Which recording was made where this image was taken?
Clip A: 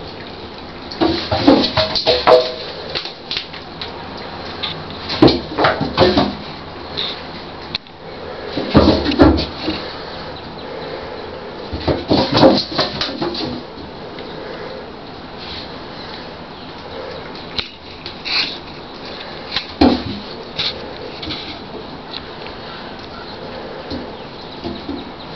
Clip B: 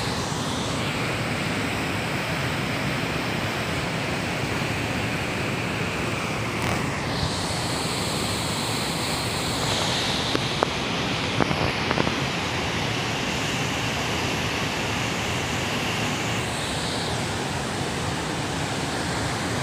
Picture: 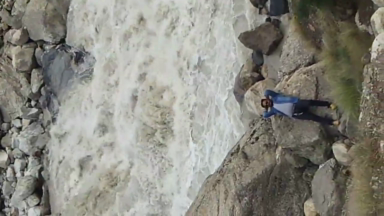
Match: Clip B